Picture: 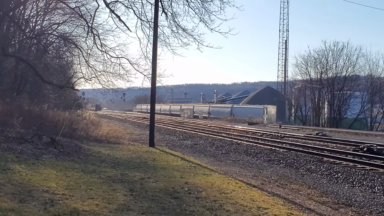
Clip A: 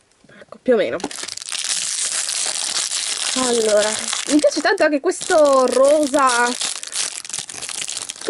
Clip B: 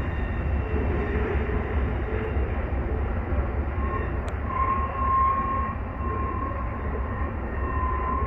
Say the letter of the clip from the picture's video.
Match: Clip B